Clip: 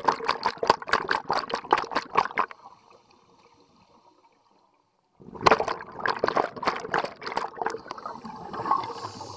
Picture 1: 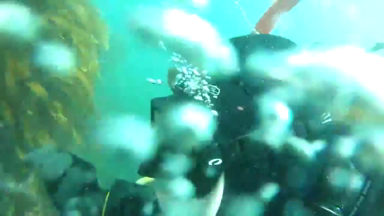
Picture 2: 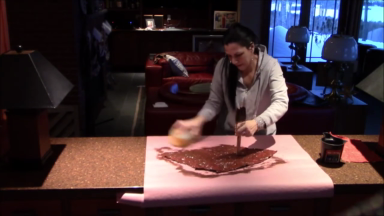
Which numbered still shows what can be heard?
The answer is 1